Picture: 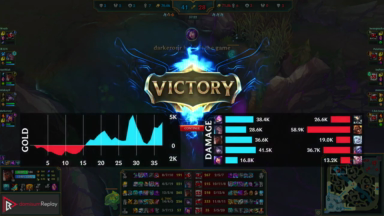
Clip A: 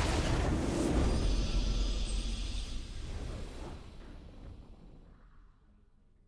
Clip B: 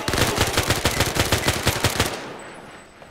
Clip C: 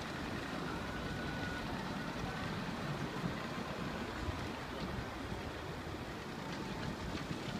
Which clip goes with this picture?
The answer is A